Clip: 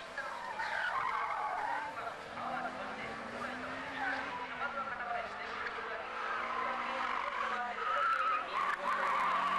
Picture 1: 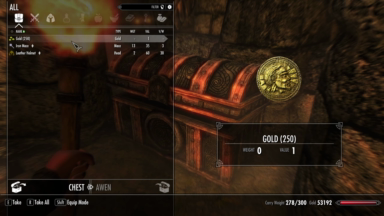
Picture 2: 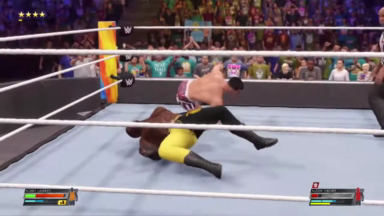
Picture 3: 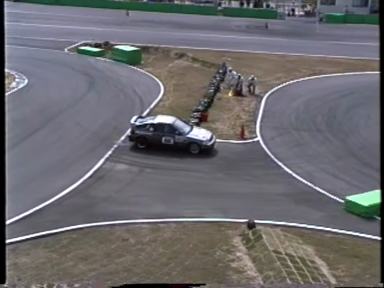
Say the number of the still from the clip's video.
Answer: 3